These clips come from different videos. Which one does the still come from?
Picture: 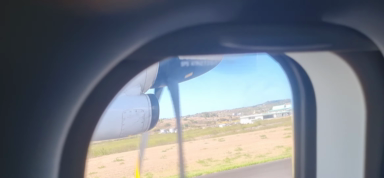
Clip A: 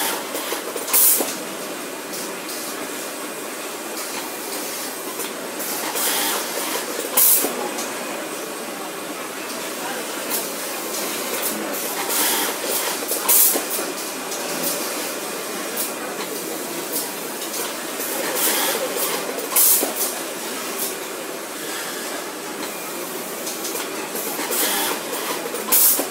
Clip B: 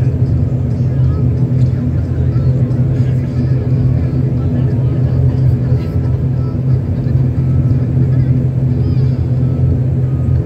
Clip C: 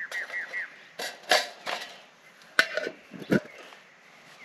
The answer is B